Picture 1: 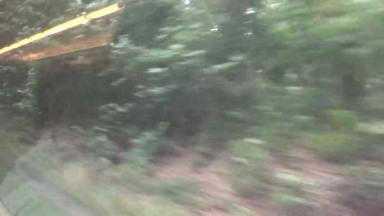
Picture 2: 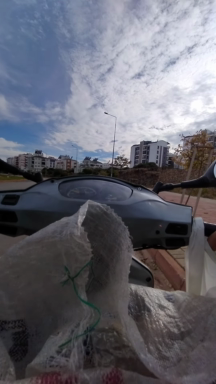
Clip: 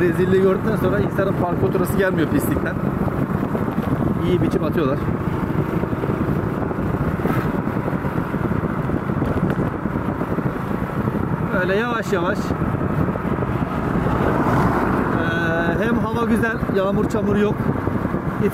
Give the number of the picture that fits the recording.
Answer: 2